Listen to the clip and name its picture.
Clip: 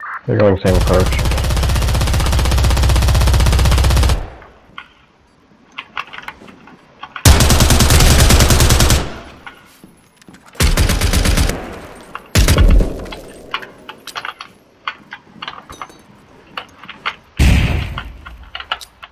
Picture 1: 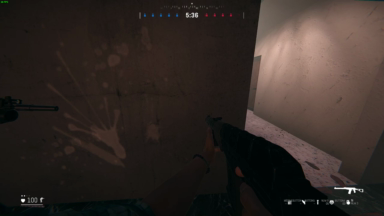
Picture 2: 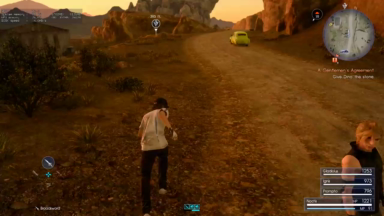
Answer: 1